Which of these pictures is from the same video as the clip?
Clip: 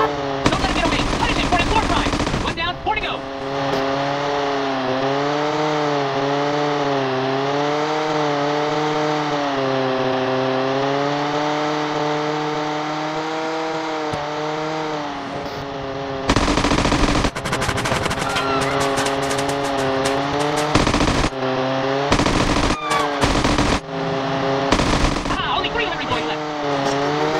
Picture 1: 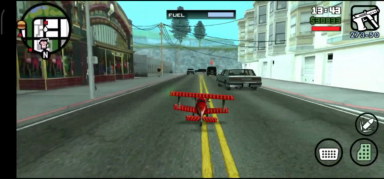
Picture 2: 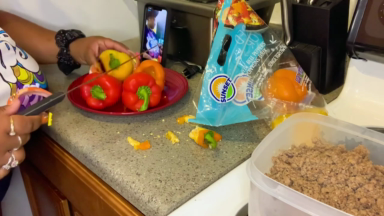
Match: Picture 1